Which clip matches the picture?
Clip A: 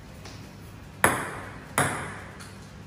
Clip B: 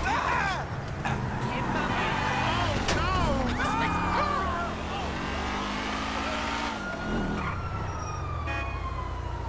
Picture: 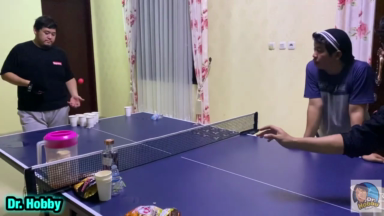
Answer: A